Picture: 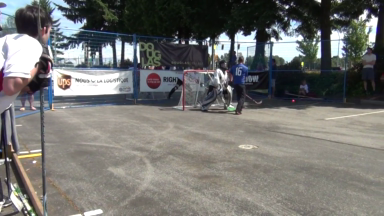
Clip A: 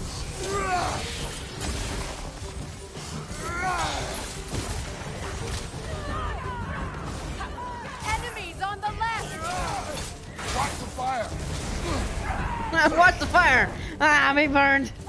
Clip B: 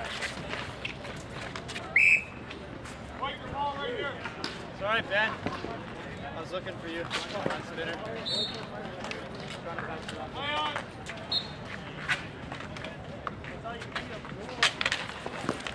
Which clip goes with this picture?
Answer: B